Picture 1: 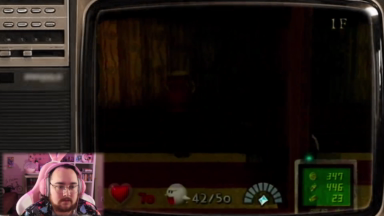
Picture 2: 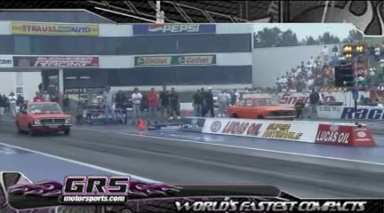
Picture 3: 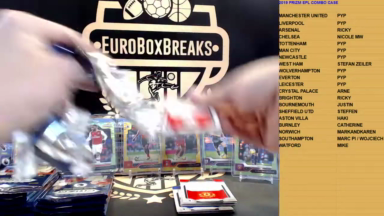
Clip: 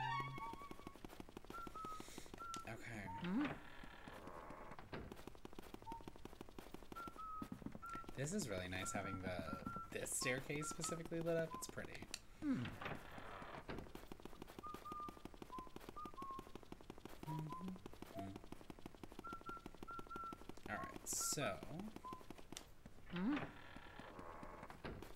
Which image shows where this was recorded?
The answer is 1